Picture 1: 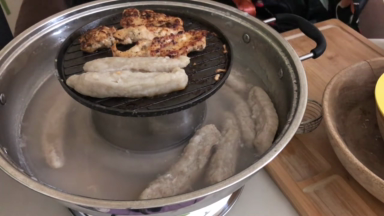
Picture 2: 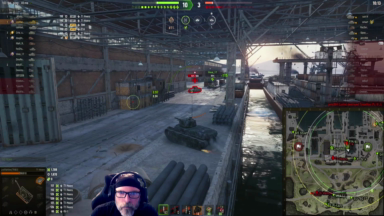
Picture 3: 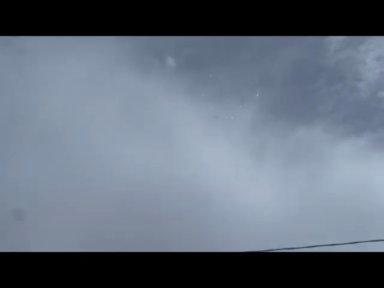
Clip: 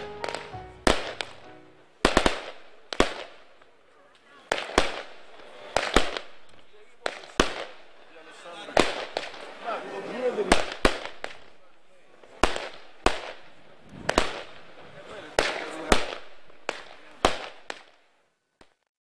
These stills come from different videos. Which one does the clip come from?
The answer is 3